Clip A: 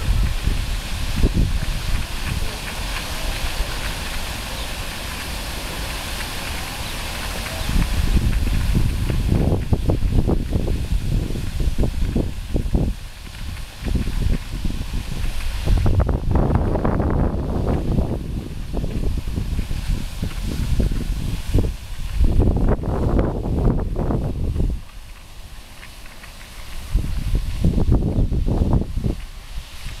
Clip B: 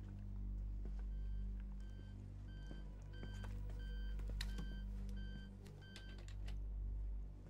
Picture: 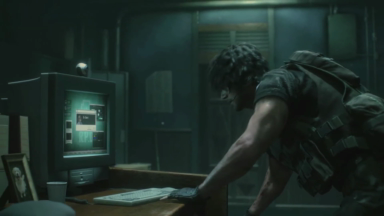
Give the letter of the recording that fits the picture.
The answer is B